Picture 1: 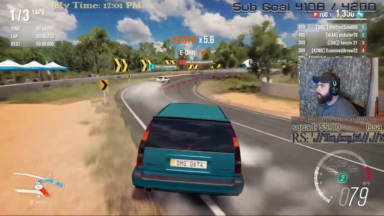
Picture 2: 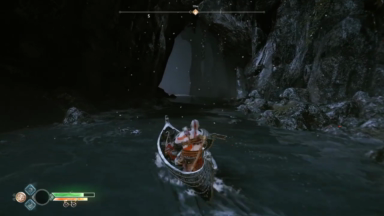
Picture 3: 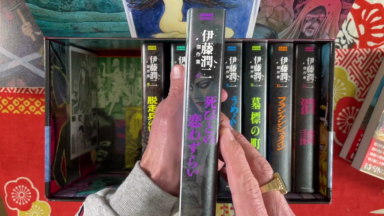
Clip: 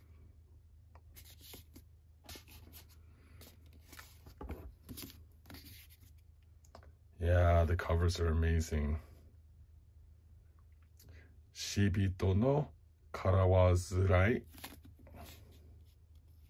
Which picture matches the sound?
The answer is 3